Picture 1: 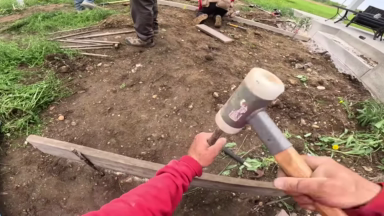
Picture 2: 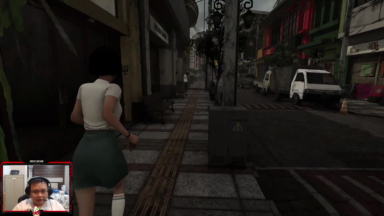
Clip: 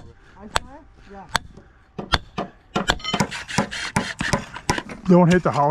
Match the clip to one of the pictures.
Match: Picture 1